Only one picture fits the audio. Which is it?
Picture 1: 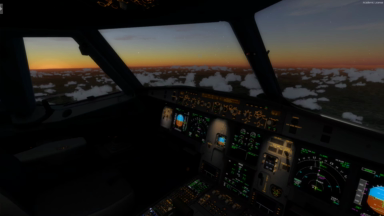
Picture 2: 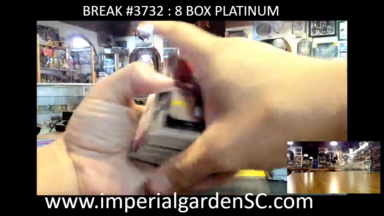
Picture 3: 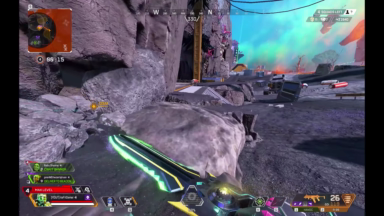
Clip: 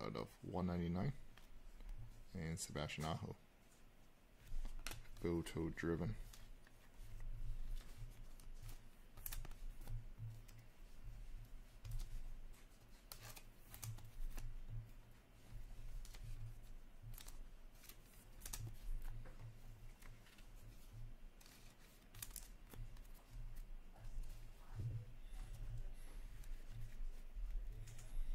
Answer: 2